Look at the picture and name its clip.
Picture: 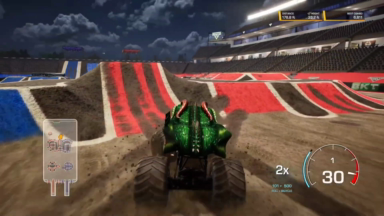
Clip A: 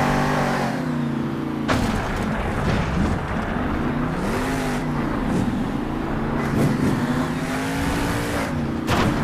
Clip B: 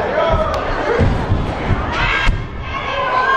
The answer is A